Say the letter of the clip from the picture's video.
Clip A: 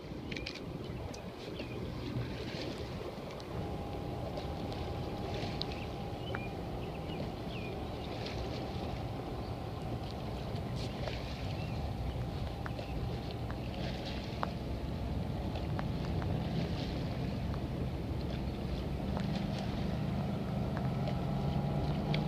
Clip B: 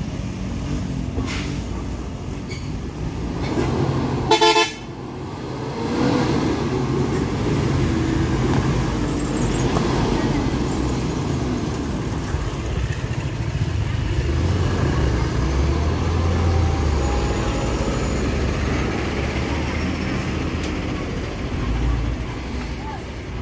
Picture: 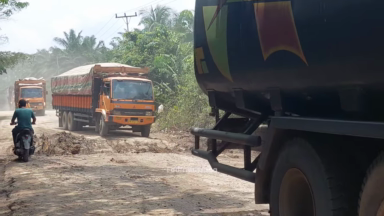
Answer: B